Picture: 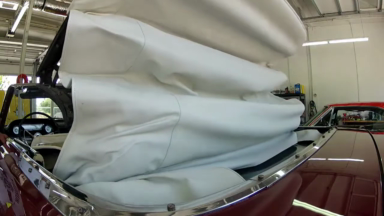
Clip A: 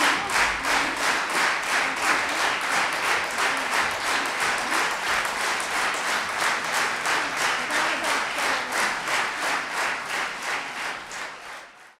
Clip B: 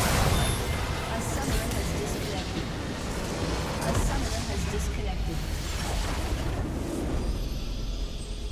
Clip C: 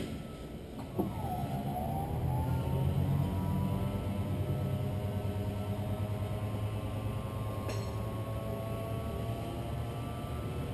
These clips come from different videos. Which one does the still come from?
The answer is C